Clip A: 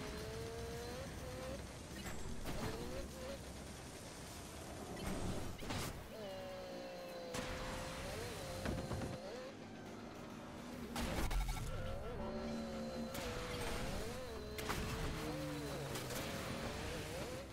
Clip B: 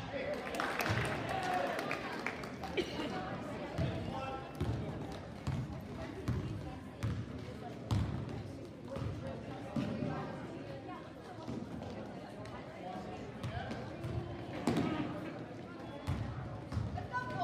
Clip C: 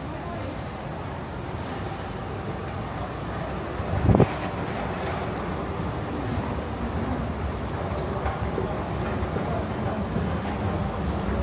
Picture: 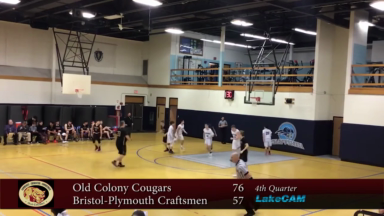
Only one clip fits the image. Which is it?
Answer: B